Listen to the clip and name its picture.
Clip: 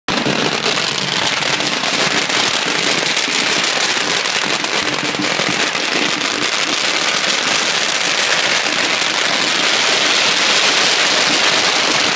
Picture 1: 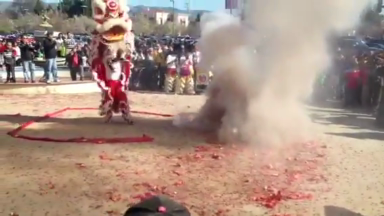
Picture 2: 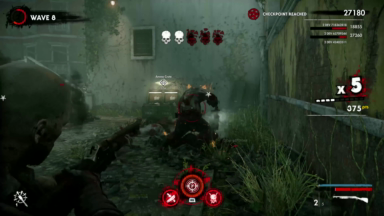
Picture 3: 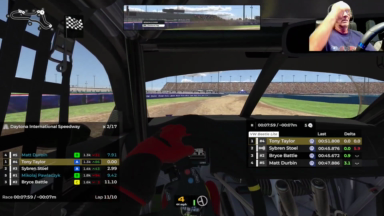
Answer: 1